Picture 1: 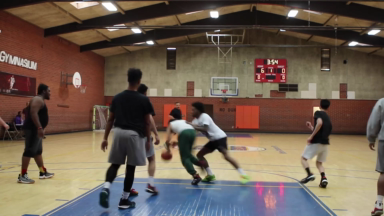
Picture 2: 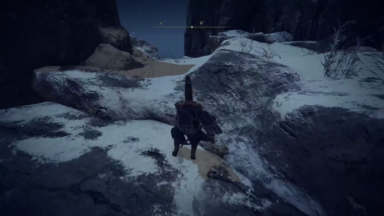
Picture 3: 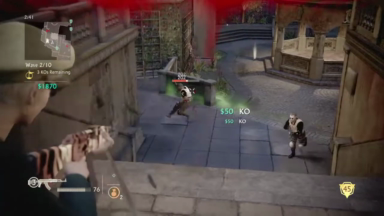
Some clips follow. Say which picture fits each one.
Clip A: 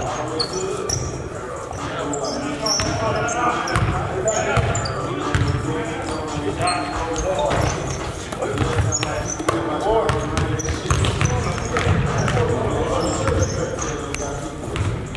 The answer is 1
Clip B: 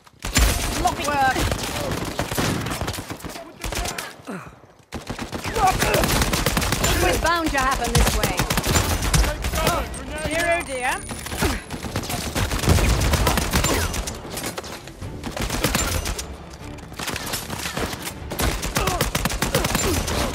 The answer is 3